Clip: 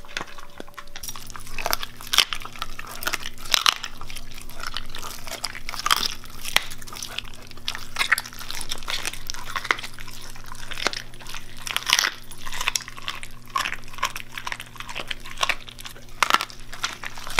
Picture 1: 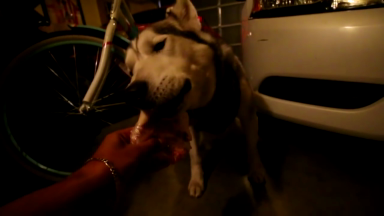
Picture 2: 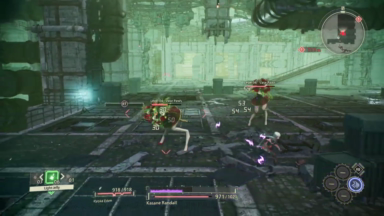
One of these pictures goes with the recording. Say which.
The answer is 1